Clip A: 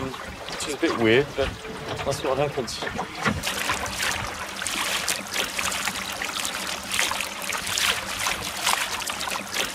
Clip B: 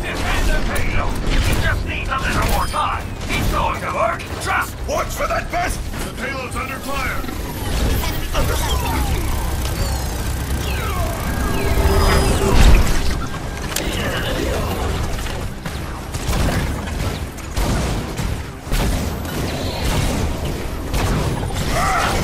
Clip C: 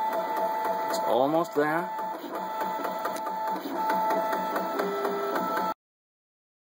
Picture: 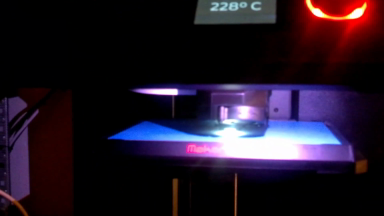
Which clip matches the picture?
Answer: C